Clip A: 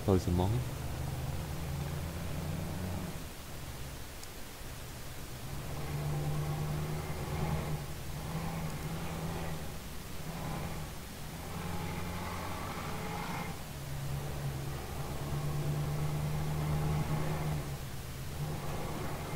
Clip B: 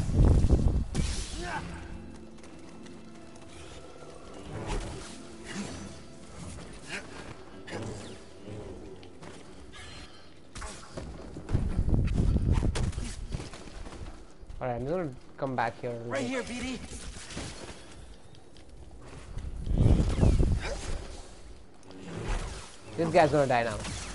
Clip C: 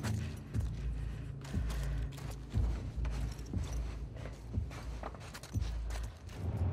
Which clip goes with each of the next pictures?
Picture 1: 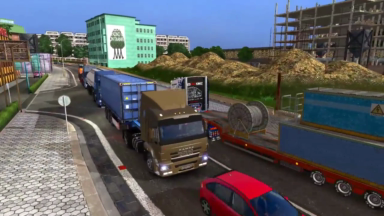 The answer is A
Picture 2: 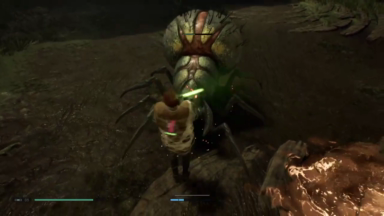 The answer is B